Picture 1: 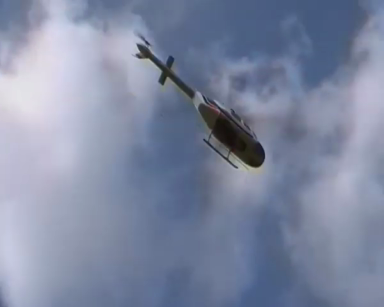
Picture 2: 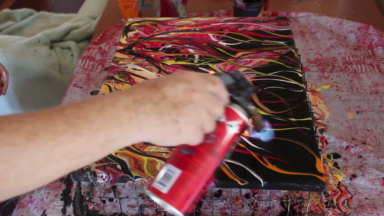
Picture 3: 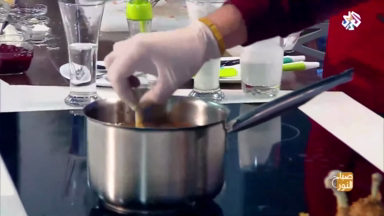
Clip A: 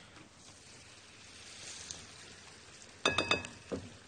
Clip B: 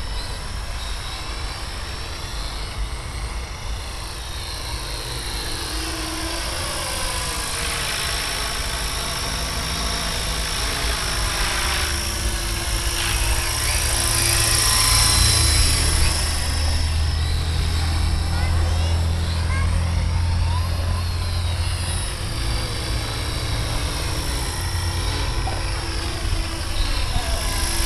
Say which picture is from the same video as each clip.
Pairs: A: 3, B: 1